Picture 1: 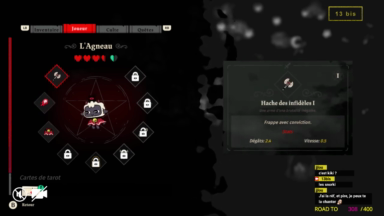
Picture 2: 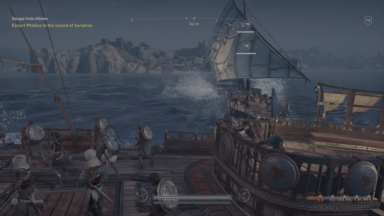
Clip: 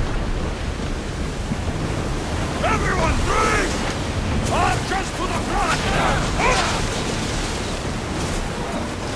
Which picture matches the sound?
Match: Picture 2